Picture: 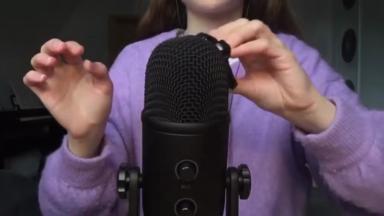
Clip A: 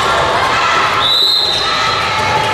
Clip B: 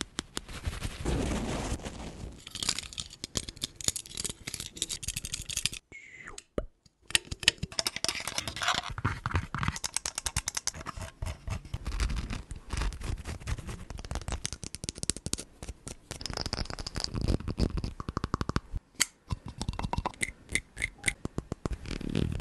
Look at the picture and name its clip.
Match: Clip B